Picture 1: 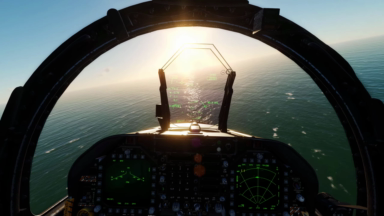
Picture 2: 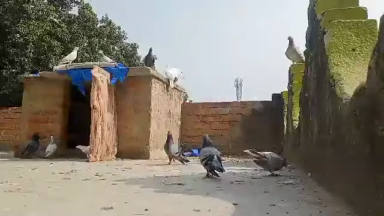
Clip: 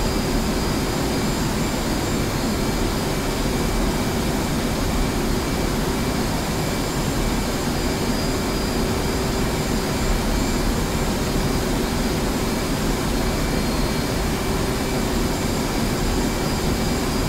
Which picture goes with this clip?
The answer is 1